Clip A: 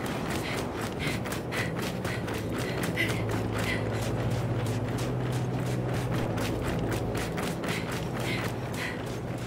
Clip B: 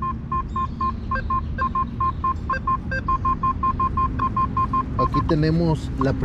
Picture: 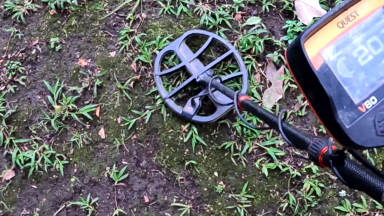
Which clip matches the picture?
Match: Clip B